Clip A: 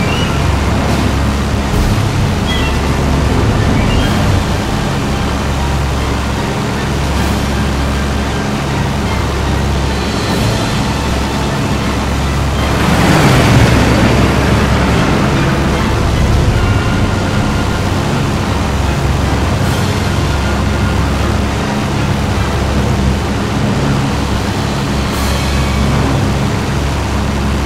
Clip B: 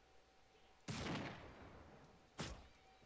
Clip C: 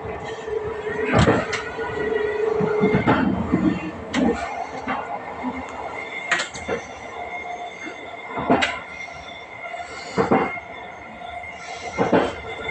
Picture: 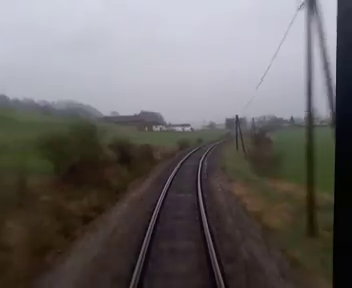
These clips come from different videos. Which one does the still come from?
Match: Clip C